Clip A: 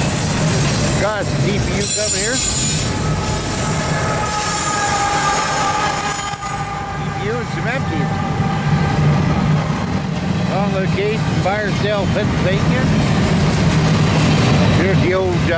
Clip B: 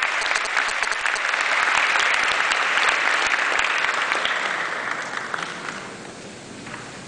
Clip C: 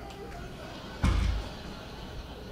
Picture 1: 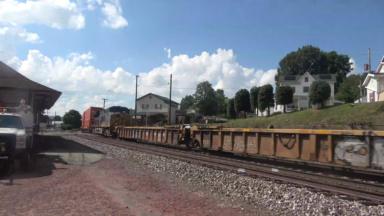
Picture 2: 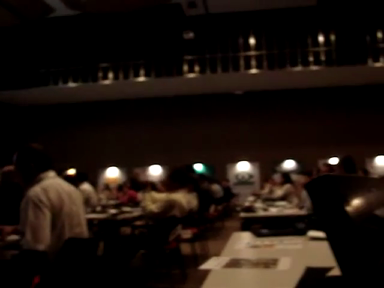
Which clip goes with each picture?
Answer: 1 A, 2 B